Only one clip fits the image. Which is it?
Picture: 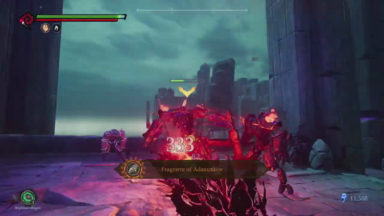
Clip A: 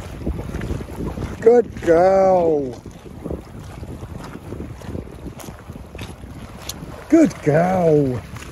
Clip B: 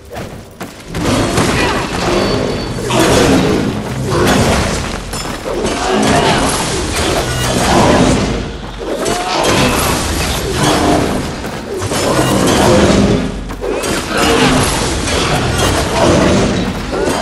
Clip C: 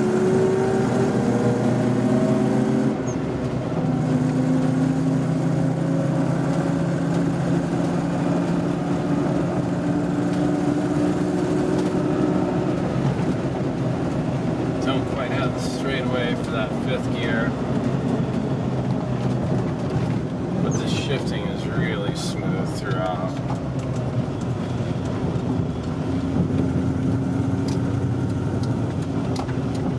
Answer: B